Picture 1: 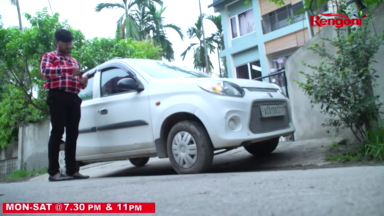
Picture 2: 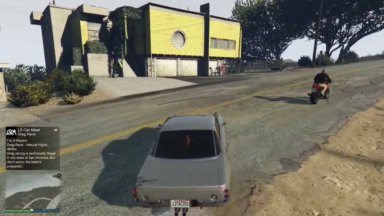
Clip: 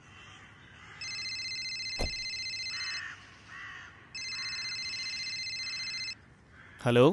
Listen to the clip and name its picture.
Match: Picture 1